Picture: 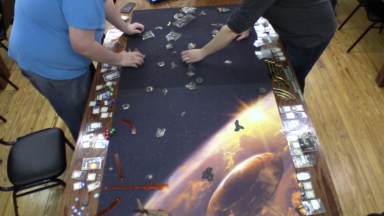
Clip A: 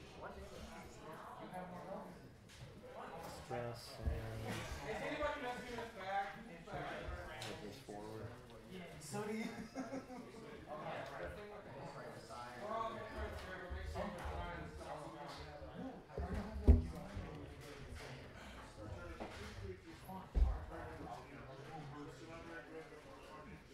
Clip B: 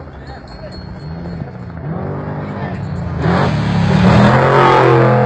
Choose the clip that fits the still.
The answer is A